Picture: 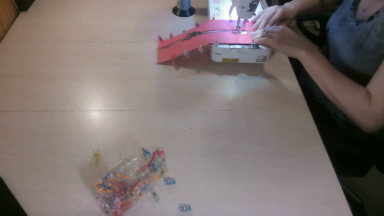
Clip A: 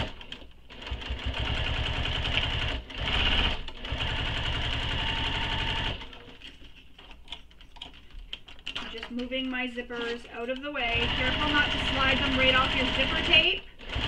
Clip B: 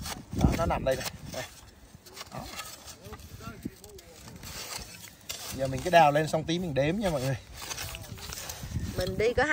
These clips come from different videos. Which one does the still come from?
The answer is A